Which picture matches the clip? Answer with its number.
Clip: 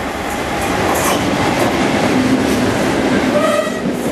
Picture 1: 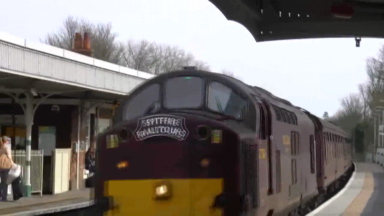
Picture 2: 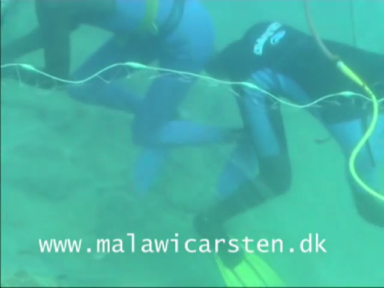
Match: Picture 1